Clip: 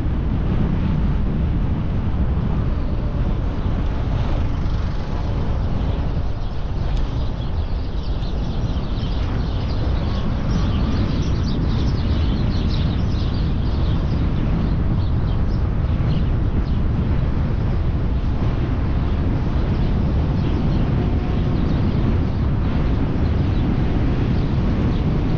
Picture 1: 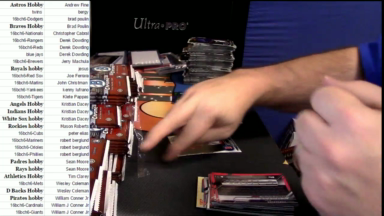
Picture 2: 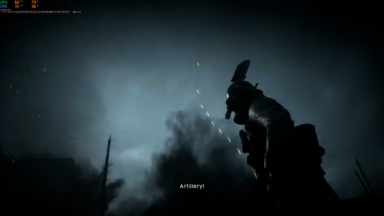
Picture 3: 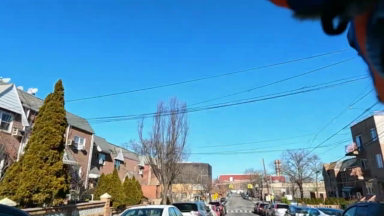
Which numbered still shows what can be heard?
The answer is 3